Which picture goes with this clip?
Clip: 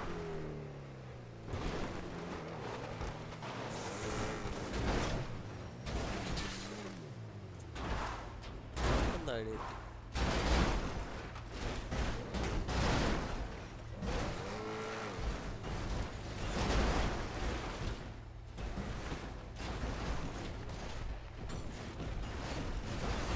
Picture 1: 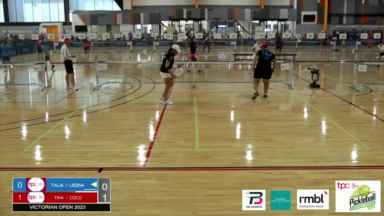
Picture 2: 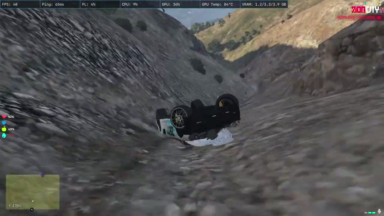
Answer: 2